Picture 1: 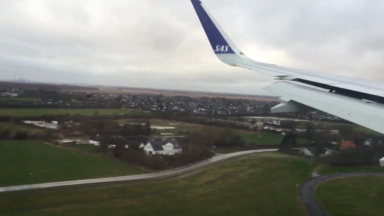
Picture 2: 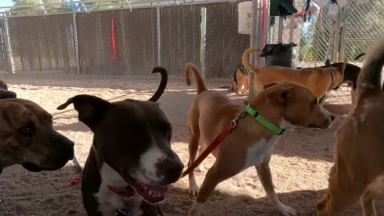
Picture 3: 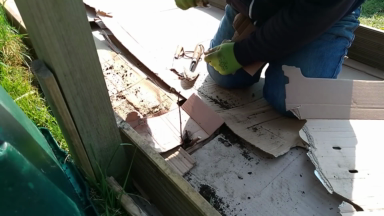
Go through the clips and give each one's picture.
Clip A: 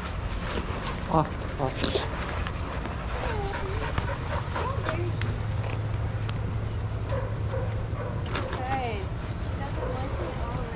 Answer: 2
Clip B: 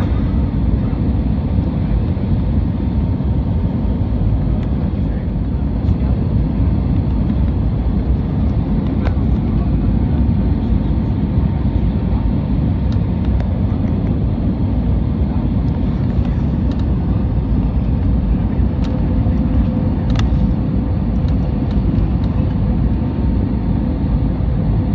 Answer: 1